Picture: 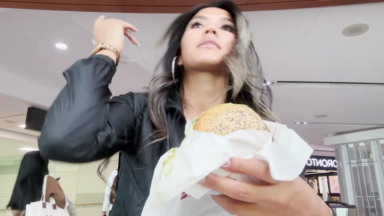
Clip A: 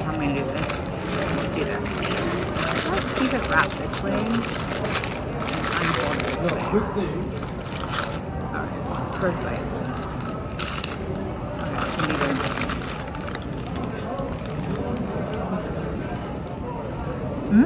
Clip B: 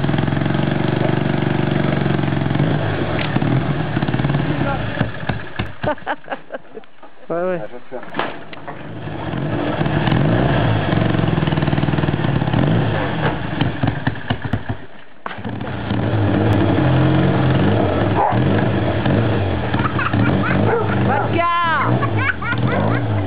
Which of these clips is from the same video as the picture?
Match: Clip A